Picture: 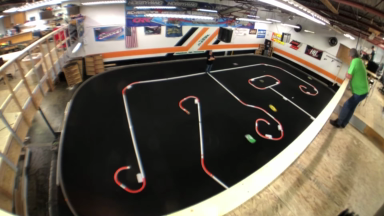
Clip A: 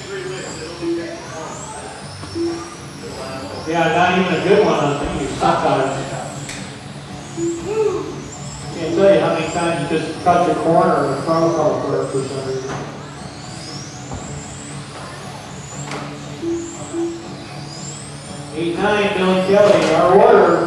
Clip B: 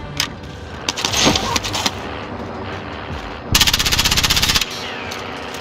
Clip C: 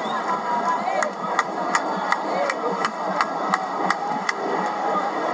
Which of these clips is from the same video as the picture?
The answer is A